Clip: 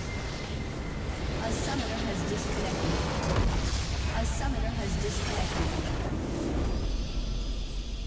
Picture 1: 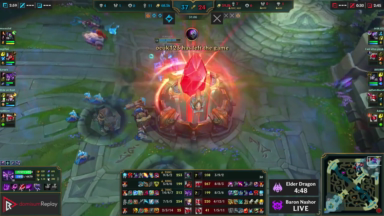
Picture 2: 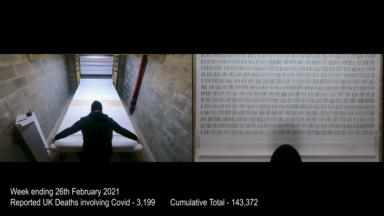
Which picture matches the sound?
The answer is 1